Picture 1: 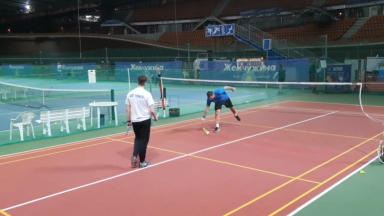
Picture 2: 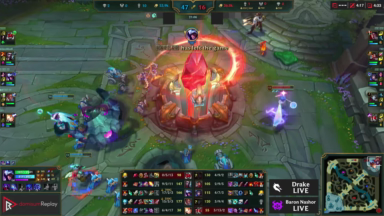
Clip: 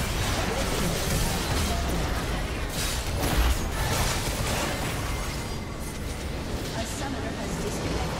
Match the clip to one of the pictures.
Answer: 2